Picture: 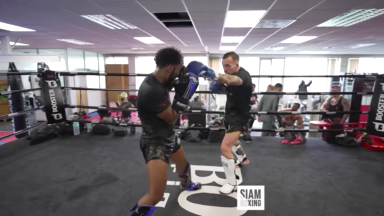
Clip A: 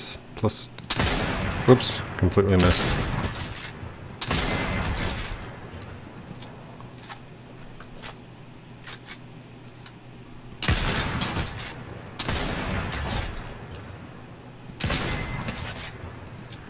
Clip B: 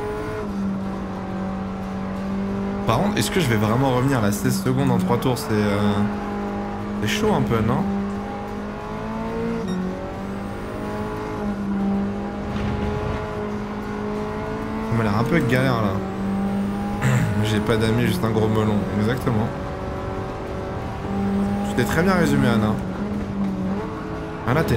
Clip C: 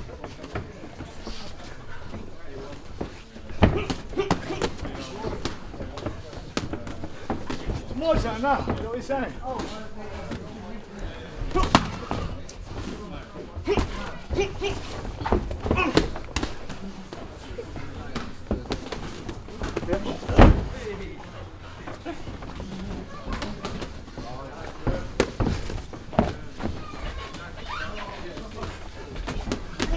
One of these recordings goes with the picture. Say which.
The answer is C